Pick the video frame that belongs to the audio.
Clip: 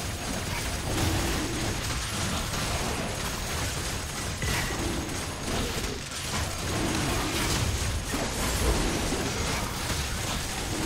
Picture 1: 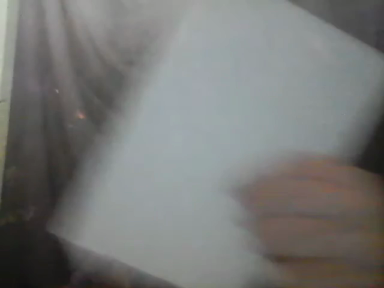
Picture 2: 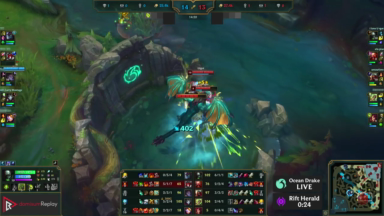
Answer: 2